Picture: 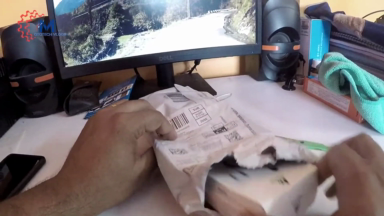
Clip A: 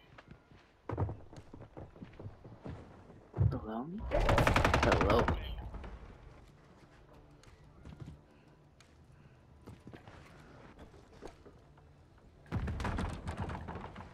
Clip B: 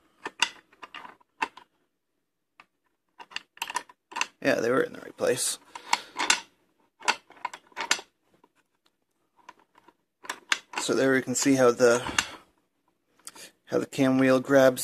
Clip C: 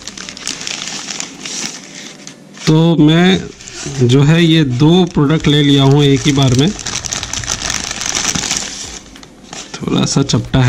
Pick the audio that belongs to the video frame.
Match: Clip C